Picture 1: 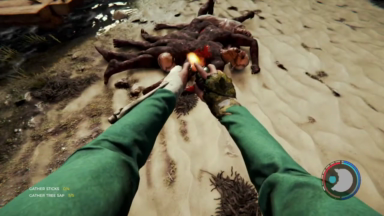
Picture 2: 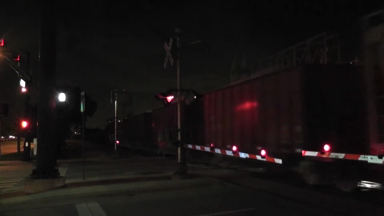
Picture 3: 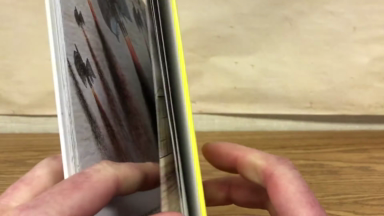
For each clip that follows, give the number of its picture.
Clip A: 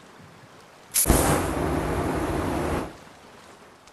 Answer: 1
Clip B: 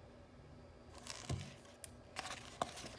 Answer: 3